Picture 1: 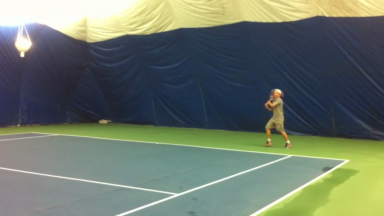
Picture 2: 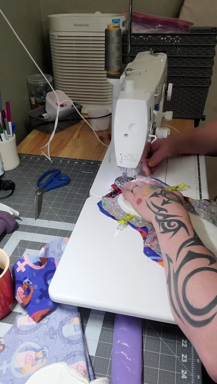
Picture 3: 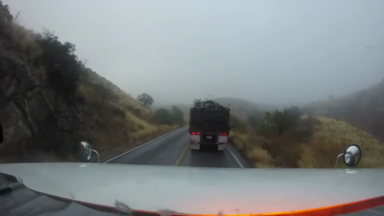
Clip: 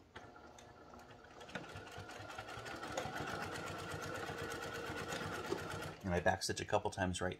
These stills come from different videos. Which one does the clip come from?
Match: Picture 2